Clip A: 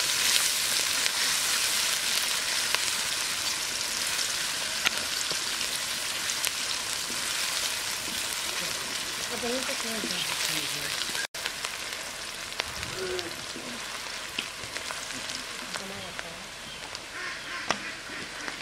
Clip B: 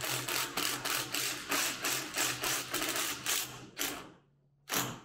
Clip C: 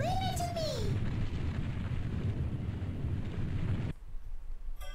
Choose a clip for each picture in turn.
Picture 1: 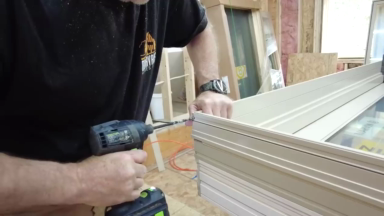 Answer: B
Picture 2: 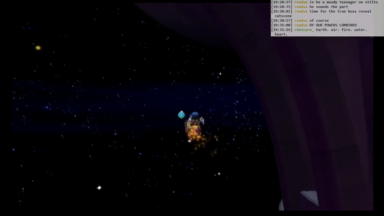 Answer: C